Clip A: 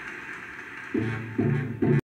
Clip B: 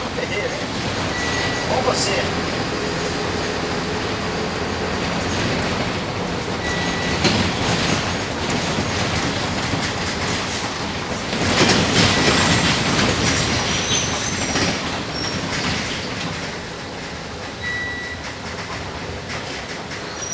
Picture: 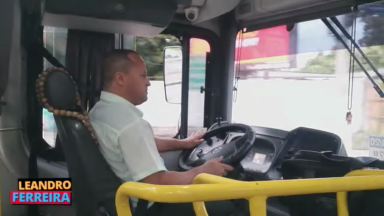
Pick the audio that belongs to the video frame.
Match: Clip B